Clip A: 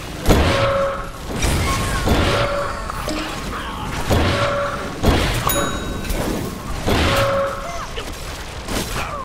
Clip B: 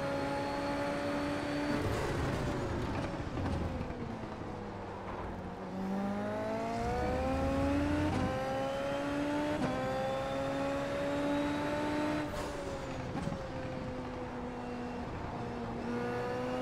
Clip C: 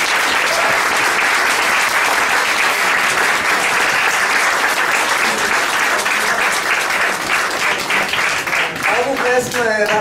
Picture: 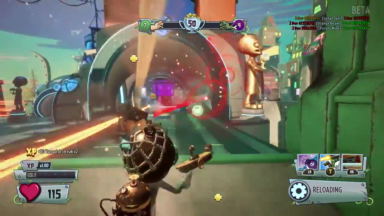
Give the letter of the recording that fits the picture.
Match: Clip A